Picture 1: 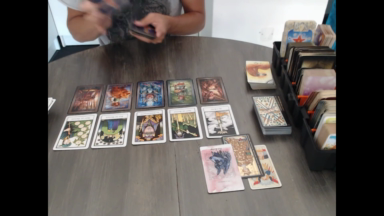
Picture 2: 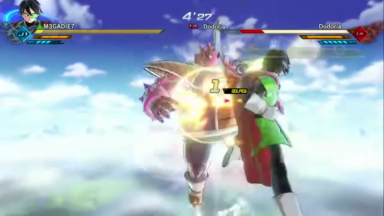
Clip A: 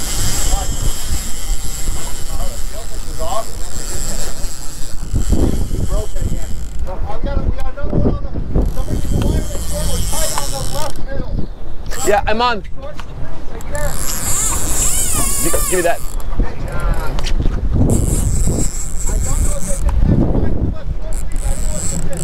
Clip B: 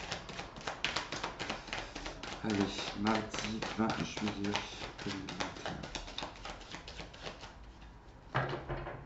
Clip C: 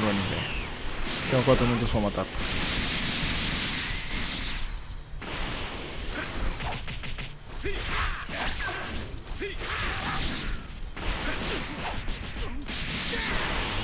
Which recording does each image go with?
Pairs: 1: B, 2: C